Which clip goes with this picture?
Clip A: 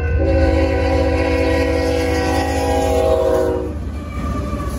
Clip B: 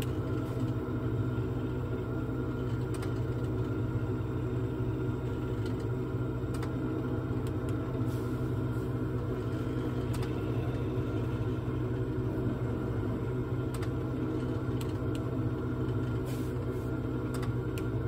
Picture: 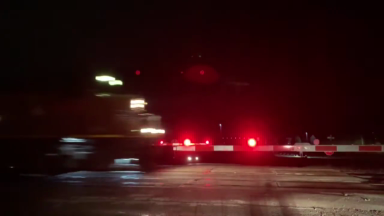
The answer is A